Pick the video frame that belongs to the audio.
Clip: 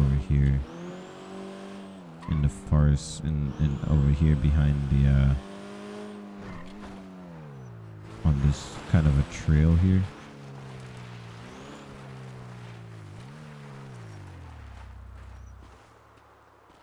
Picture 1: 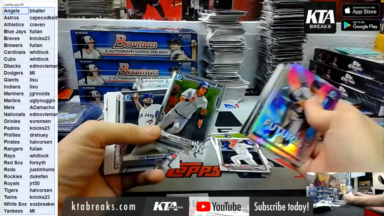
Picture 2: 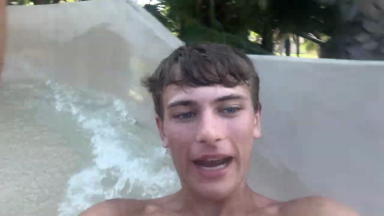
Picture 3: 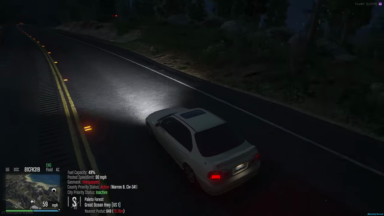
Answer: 3